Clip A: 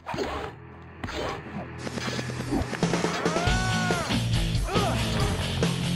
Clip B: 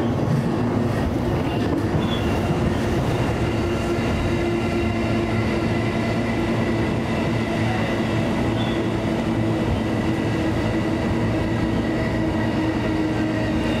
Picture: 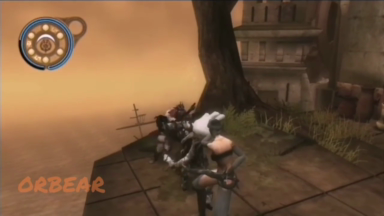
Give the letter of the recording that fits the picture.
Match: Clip A